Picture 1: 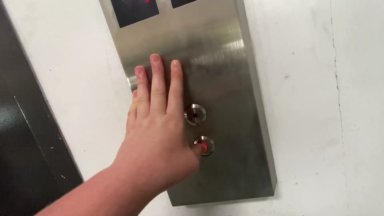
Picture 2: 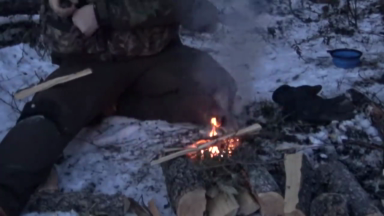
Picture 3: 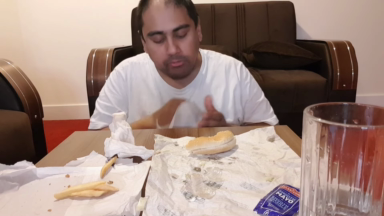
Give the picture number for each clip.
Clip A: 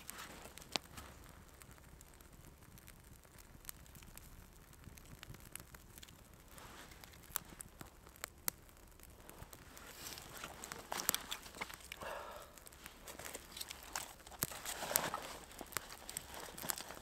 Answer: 2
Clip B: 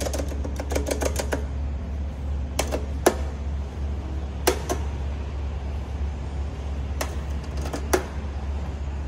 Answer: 1